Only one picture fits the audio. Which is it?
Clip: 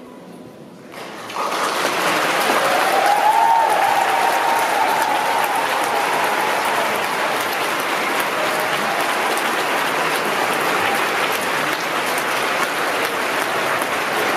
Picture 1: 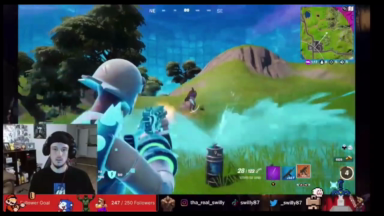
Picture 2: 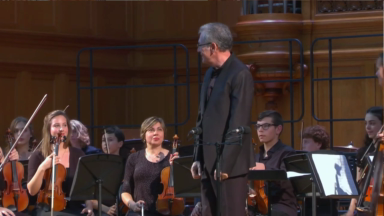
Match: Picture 2